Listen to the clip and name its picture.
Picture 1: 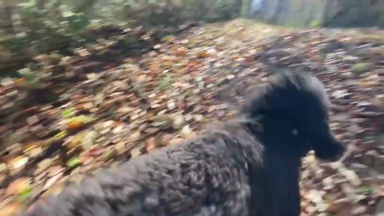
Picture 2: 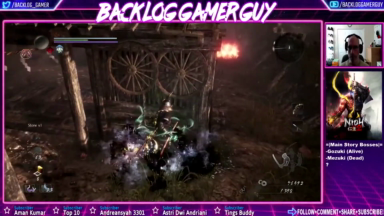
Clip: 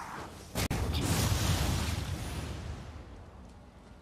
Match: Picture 2